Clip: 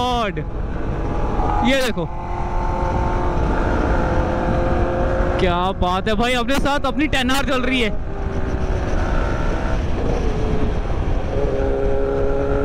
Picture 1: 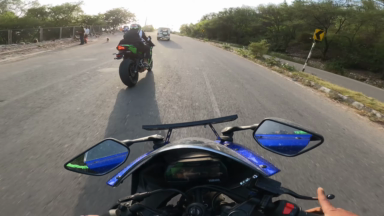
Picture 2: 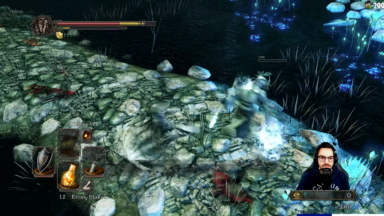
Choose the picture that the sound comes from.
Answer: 1